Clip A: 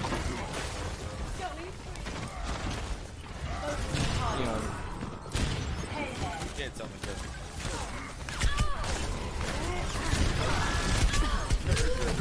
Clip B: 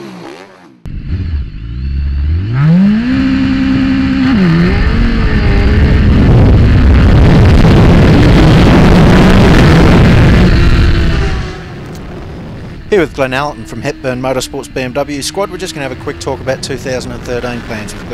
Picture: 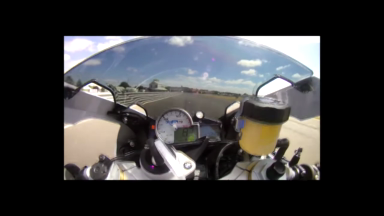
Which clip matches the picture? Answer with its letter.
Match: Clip B